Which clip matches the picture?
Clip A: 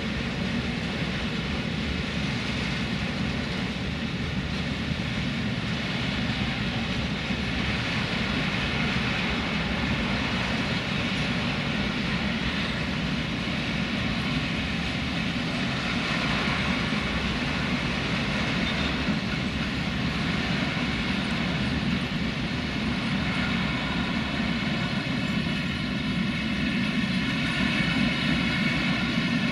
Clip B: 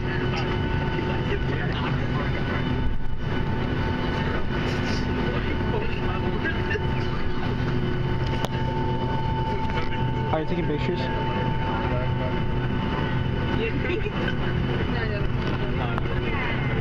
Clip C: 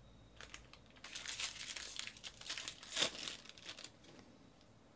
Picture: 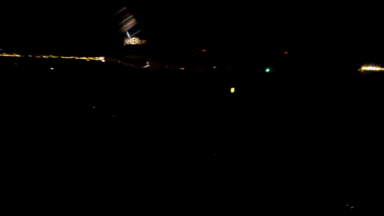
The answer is B